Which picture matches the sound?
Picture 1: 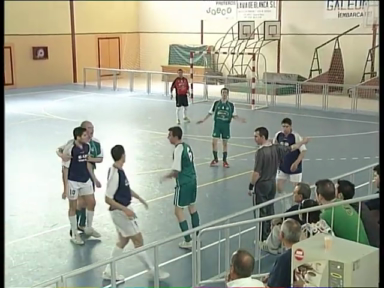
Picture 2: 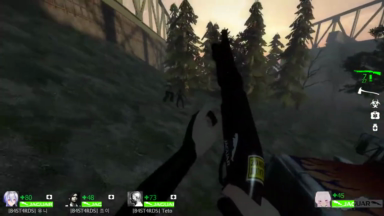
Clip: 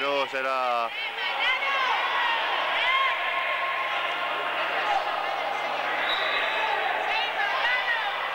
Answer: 1